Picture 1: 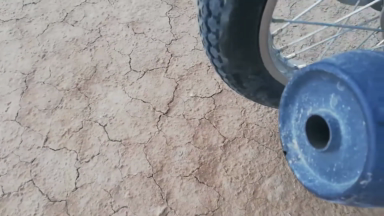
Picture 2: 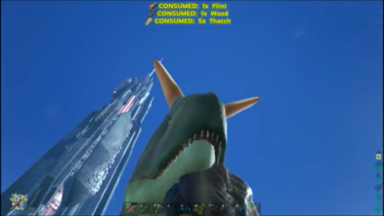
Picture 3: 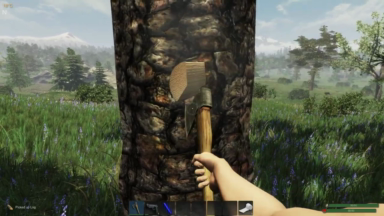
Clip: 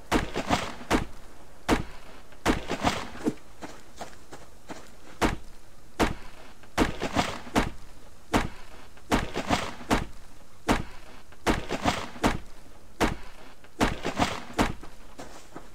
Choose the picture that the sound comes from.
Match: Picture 3